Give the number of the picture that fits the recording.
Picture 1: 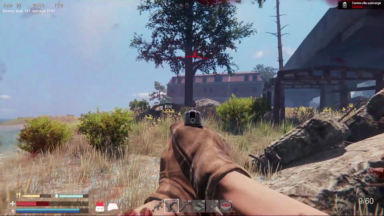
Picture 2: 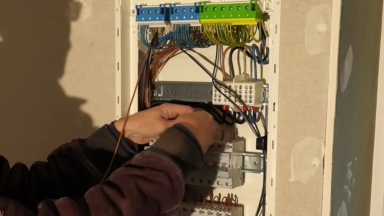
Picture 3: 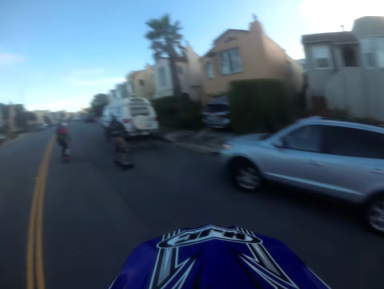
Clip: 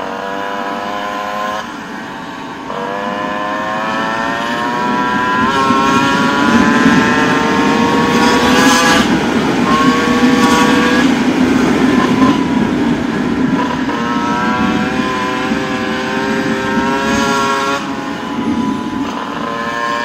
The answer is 3